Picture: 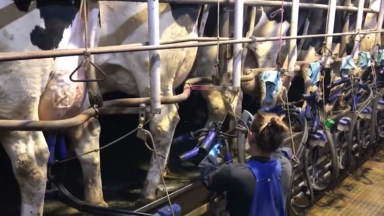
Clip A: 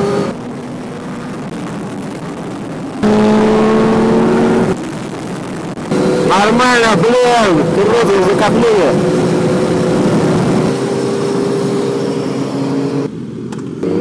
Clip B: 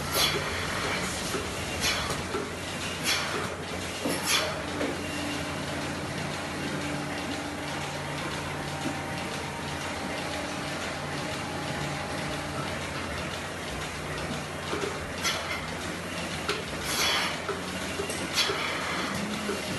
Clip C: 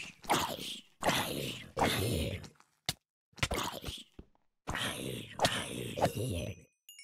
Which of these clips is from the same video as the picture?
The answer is B